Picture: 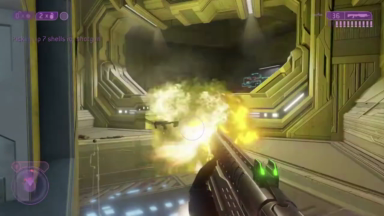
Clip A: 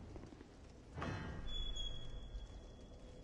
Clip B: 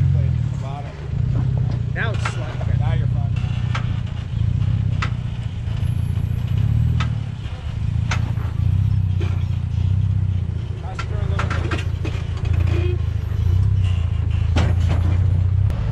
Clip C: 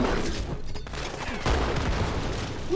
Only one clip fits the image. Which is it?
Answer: C